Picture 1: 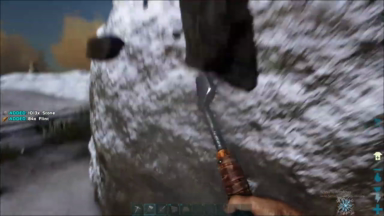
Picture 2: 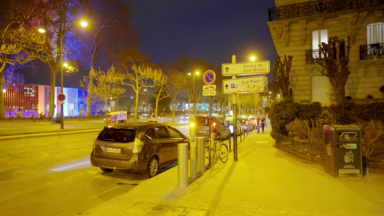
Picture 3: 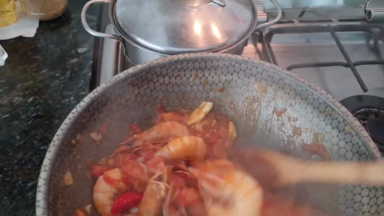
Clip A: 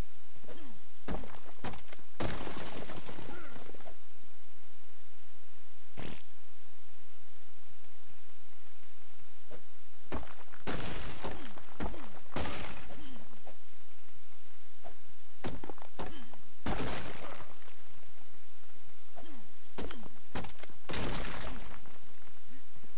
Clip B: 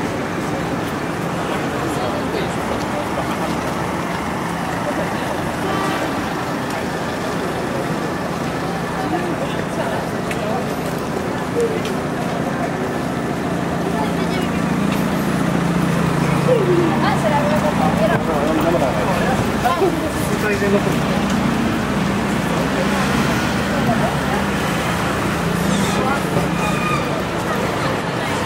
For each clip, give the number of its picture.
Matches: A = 1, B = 2